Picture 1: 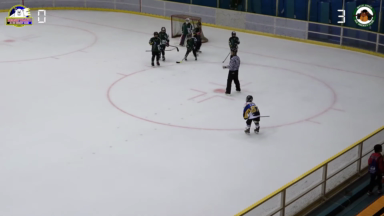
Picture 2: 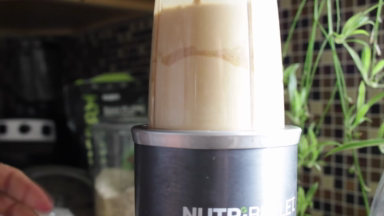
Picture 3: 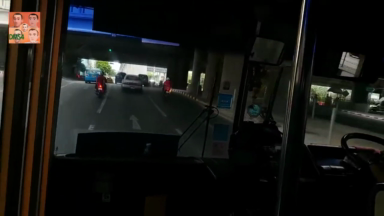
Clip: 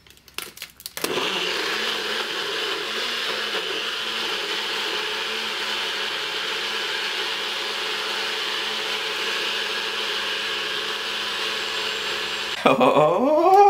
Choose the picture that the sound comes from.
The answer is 2